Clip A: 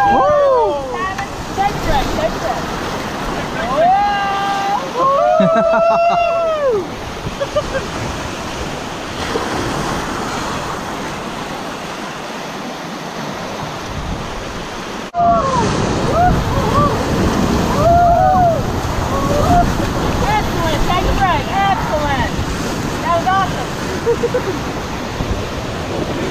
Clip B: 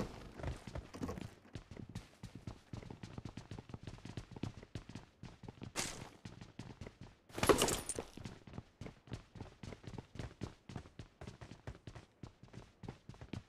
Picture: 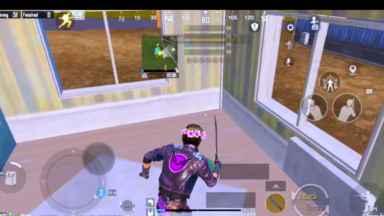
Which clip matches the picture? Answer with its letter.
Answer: B